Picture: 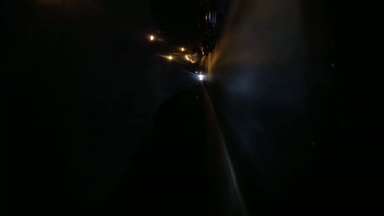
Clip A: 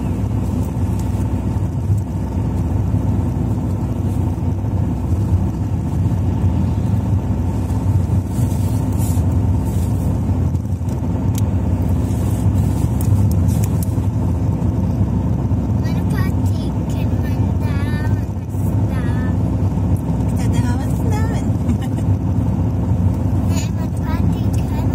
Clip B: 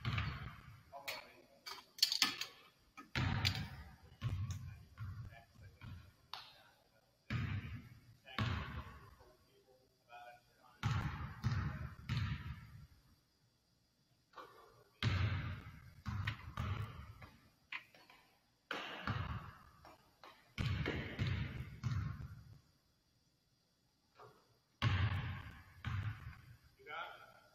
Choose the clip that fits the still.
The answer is A